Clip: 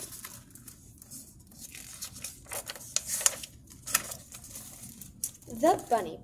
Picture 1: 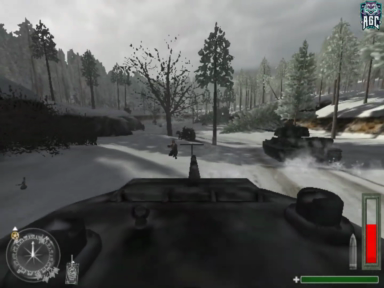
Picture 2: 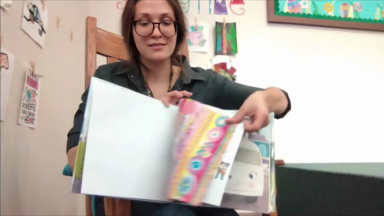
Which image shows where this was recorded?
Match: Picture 2